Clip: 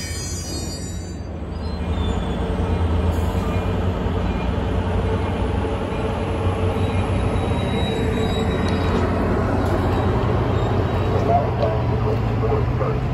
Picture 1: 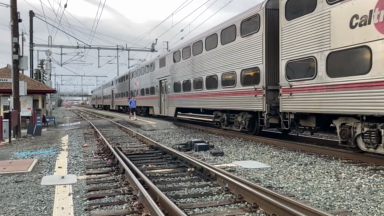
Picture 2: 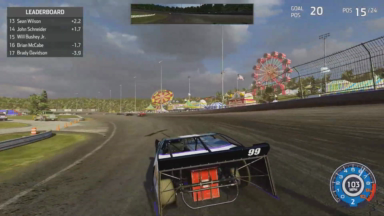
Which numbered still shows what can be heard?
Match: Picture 1